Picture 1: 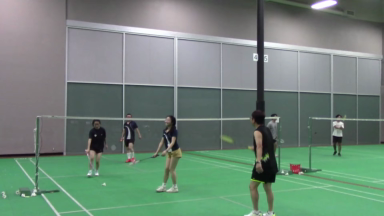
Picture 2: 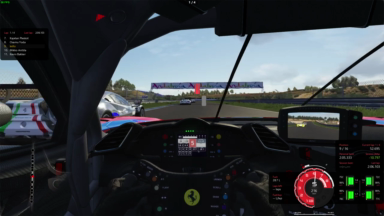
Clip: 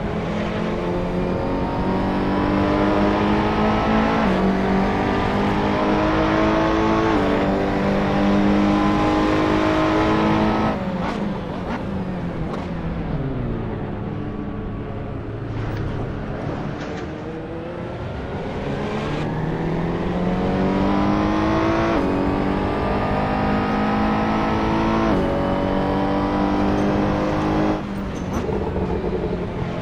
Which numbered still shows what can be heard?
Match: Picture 2